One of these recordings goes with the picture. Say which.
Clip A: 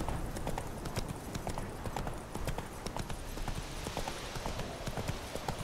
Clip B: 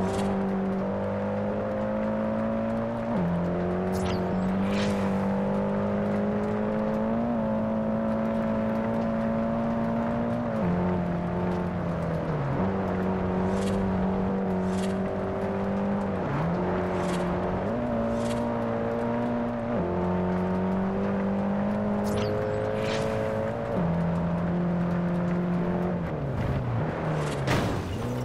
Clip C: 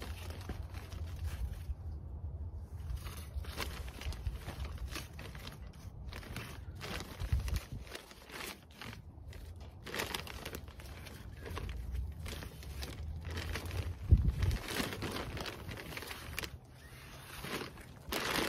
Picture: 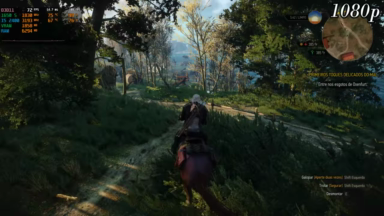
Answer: A